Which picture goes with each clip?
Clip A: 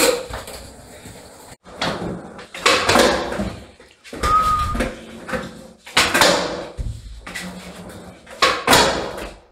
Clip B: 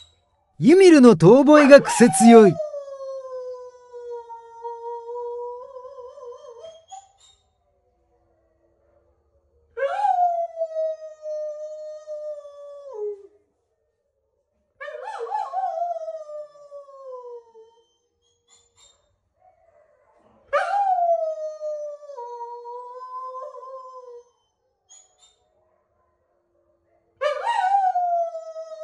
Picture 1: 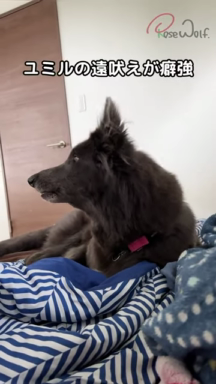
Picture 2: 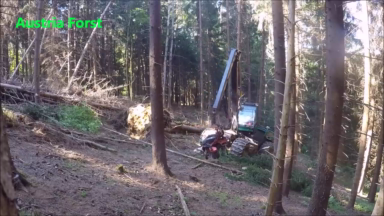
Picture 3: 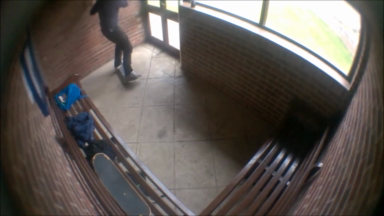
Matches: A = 3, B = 1